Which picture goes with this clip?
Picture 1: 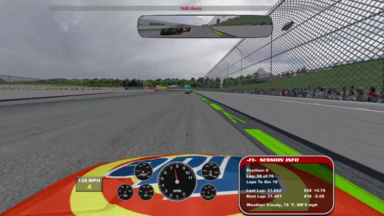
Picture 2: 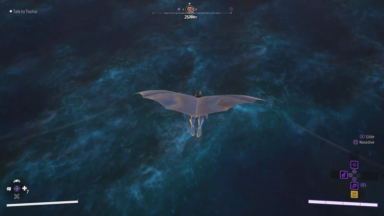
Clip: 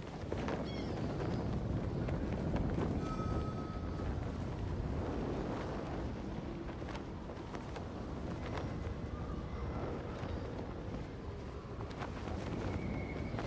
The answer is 2